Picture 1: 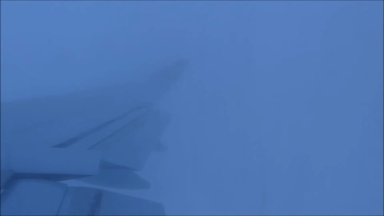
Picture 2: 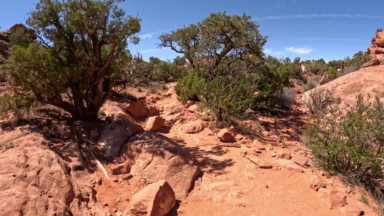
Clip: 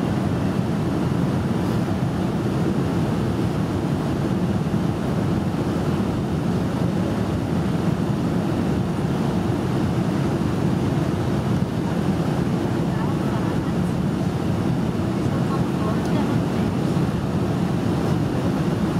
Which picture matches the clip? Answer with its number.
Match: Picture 1